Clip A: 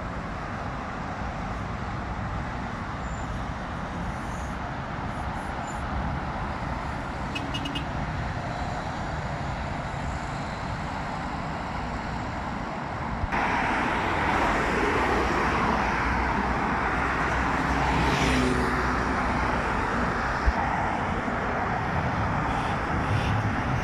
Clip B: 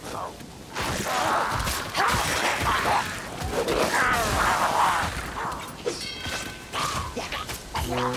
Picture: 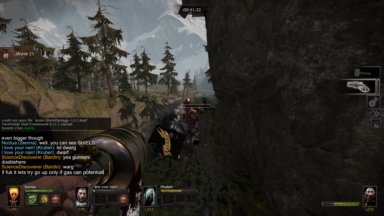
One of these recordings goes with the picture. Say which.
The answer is B